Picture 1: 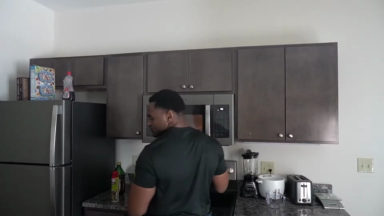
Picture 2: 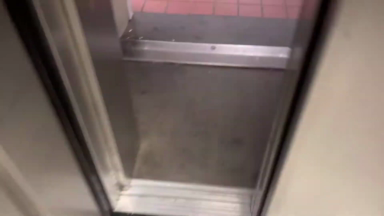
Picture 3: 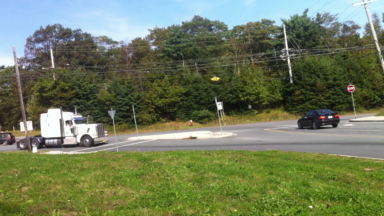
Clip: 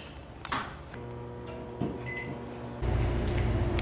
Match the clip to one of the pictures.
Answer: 1